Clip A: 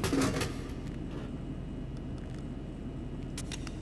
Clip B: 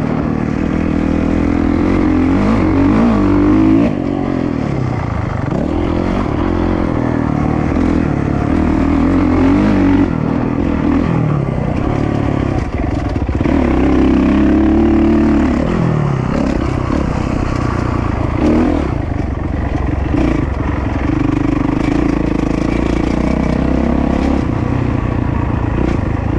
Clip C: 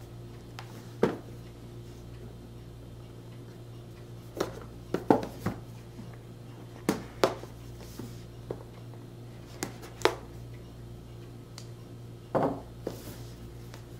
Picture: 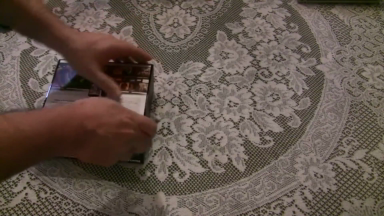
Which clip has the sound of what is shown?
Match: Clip C